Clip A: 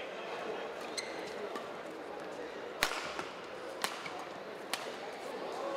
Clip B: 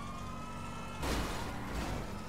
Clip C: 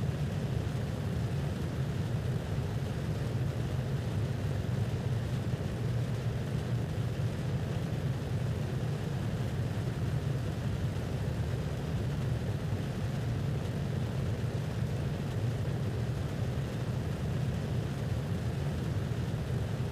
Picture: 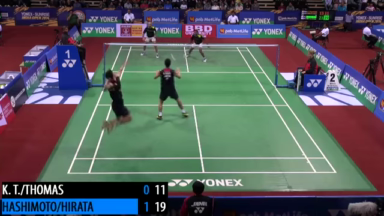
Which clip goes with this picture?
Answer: A